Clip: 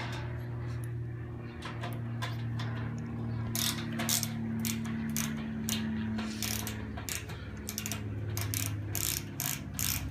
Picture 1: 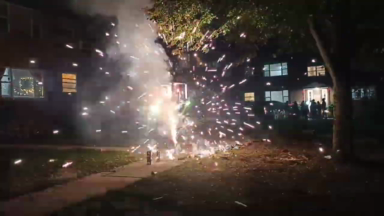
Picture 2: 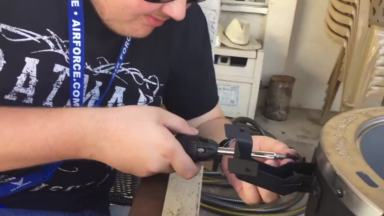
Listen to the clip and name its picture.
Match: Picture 2